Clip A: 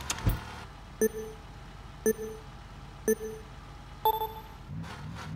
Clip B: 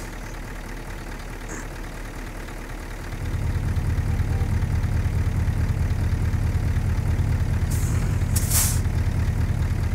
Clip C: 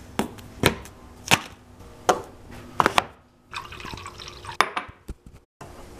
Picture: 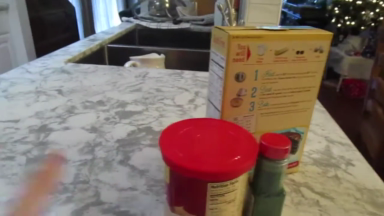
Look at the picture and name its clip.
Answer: C